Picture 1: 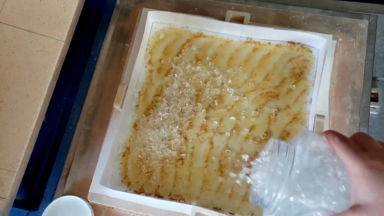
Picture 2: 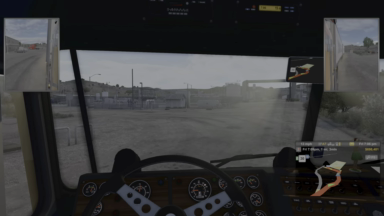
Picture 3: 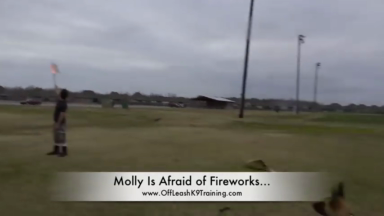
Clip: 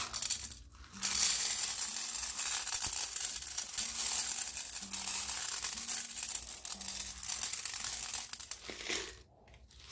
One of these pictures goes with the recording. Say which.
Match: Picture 1